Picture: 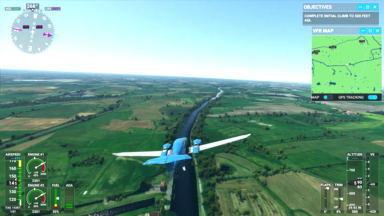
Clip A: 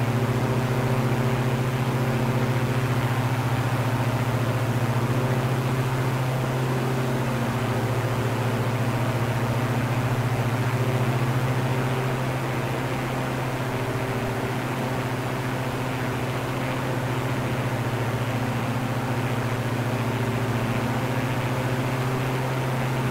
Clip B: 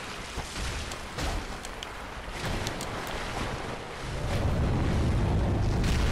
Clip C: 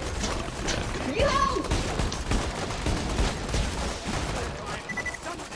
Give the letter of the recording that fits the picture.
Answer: A